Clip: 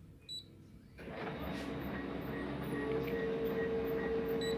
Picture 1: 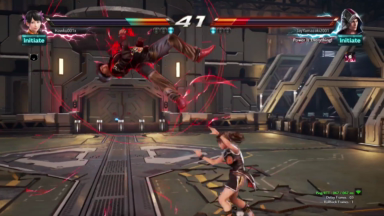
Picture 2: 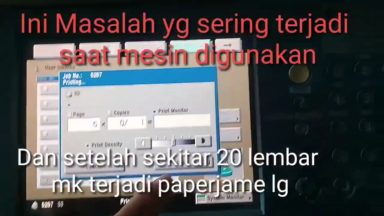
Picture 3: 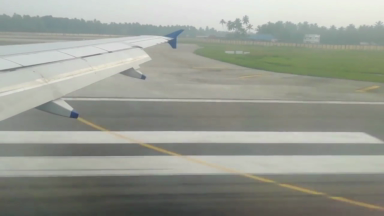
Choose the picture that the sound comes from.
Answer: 2